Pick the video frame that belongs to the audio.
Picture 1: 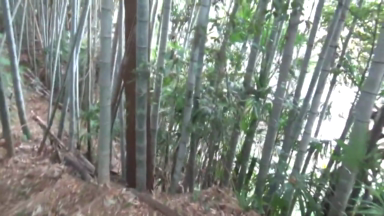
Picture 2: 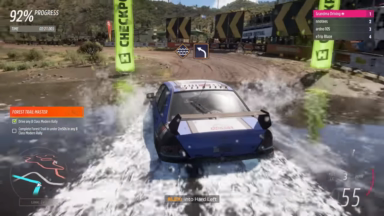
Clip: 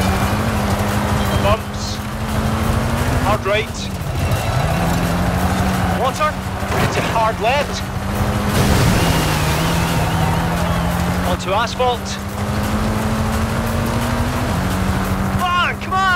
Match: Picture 2